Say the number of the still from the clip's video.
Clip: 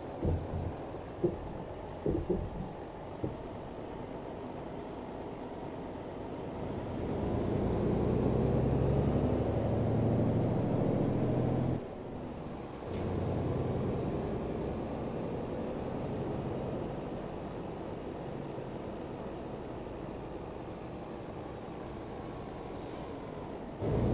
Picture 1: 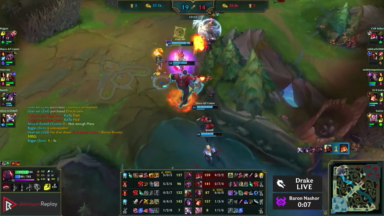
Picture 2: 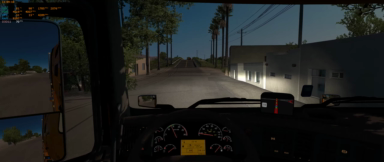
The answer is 2